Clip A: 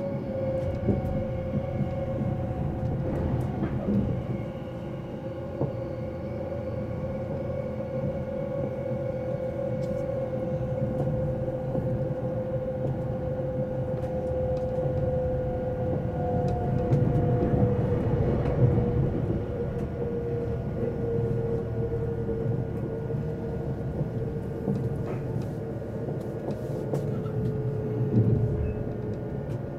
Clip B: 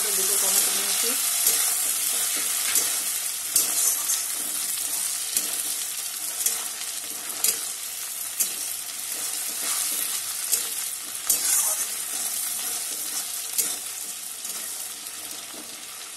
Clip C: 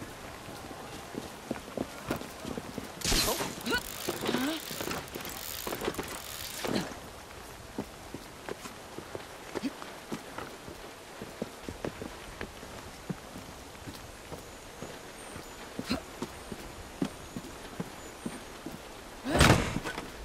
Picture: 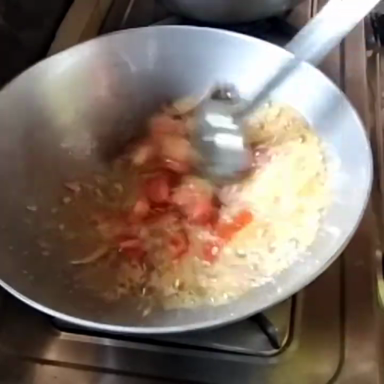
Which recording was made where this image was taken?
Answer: B